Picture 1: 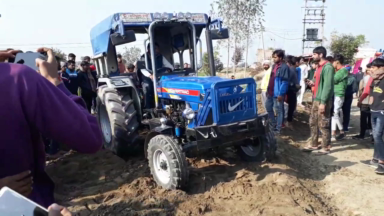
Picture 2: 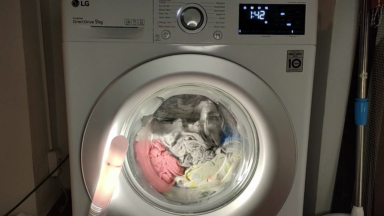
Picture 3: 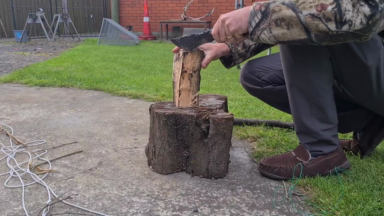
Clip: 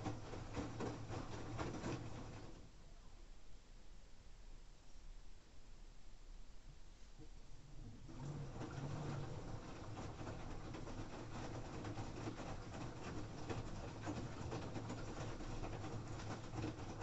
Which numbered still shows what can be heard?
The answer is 2